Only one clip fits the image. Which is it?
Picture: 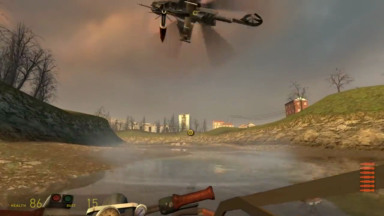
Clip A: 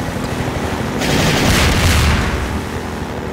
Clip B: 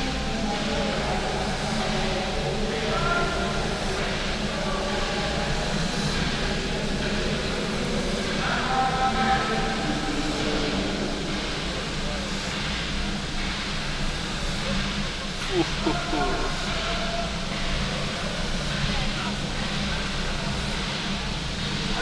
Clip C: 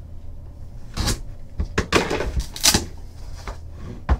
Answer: A